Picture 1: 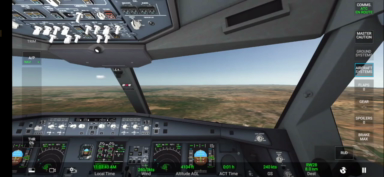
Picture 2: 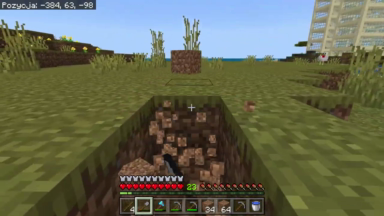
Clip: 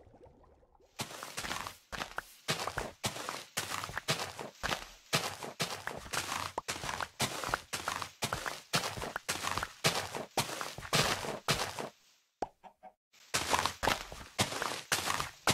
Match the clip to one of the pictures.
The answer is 2